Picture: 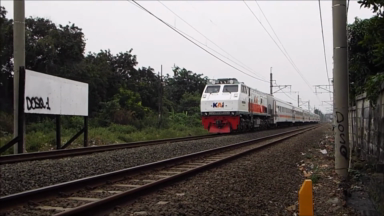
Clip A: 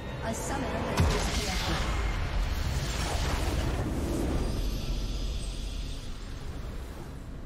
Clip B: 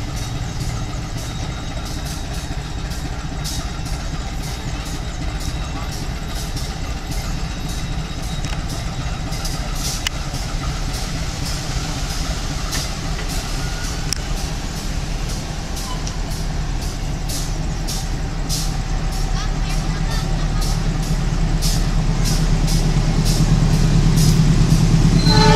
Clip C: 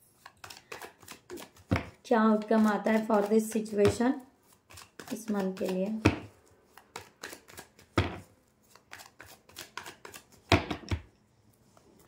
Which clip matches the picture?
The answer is B